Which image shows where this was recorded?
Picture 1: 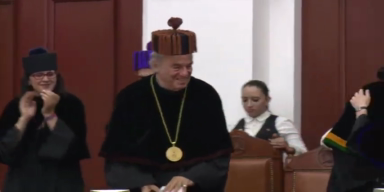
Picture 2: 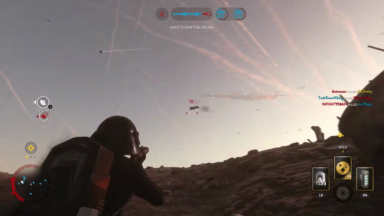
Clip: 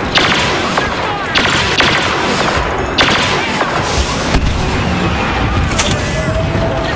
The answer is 2